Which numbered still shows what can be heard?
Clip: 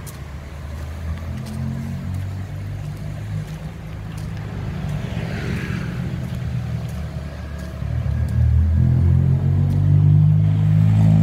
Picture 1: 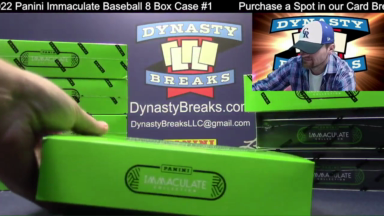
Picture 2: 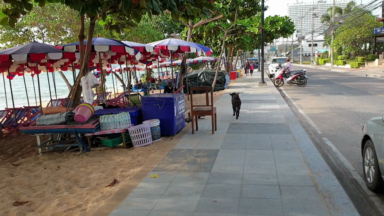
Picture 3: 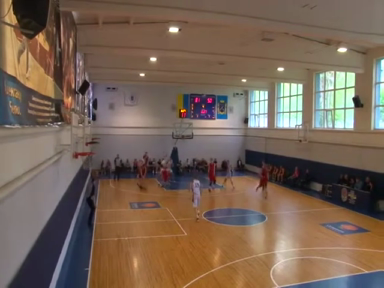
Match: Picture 2